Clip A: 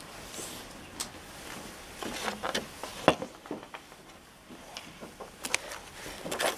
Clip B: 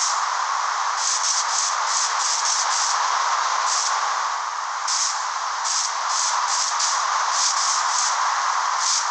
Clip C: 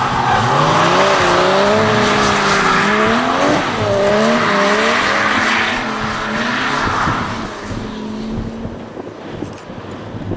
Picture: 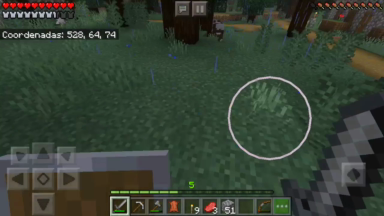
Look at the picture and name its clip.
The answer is B